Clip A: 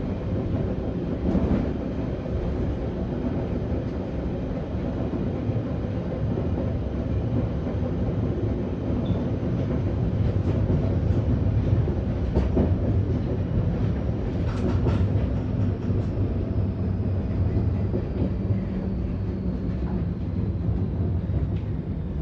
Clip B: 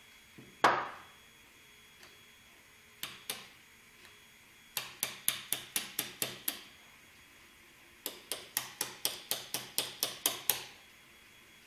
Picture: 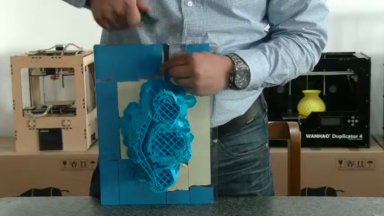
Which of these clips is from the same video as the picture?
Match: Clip B